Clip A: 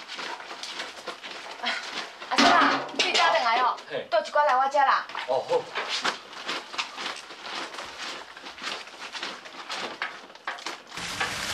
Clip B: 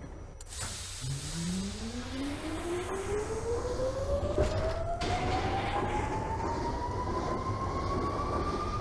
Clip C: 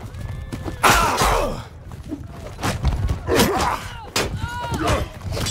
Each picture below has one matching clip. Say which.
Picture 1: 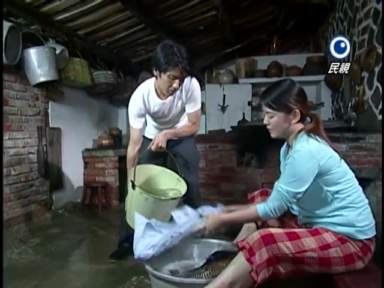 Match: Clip A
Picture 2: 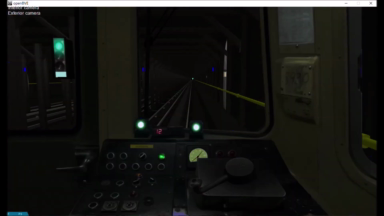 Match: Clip B